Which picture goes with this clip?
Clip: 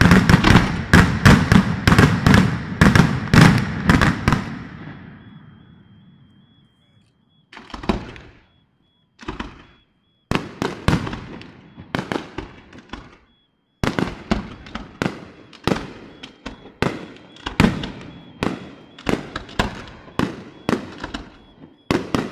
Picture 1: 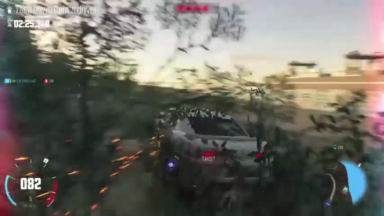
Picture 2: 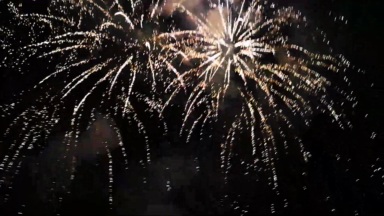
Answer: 2